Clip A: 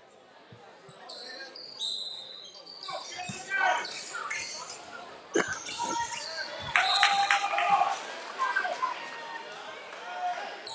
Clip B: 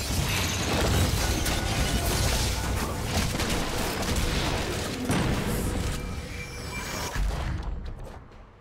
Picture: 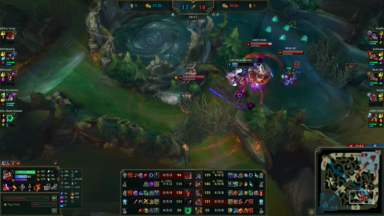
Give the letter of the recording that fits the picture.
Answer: B